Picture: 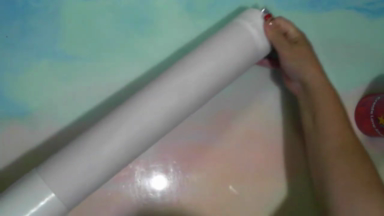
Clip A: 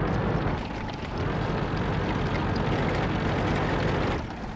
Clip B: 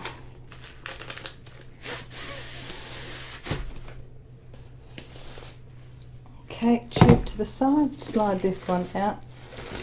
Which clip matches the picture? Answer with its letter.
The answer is B